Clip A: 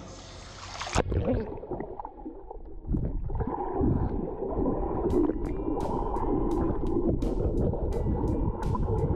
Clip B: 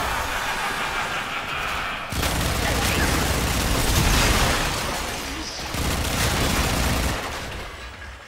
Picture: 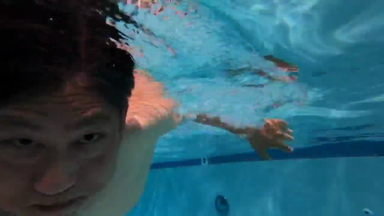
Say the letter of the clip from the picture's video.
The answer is A